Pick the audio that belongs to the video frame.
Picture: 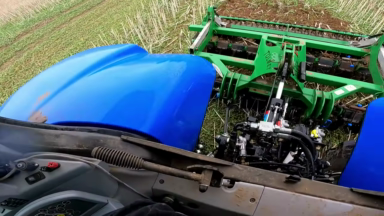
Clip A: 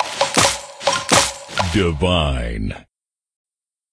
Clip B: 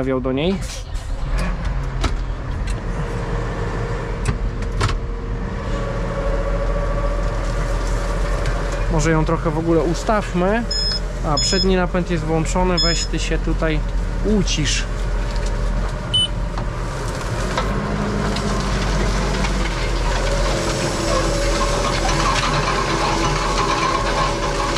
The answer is B